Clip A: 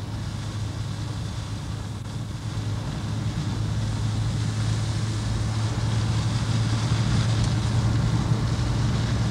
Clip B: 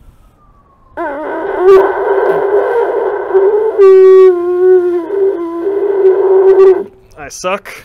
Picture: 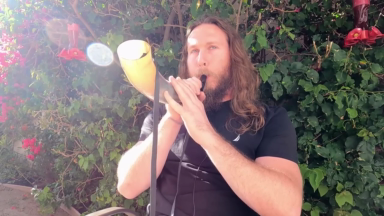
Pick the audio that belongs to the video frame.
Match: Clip B